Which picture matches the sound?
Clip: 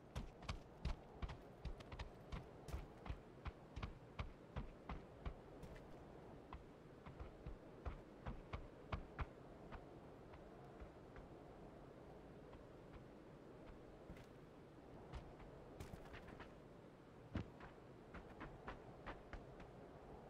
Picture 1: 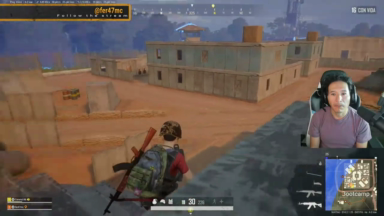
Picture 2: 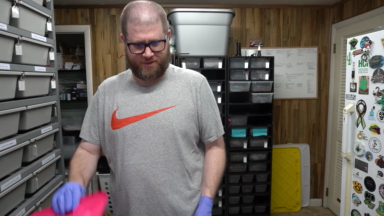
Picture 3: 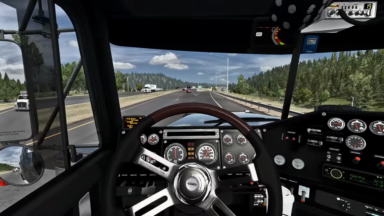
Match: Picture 1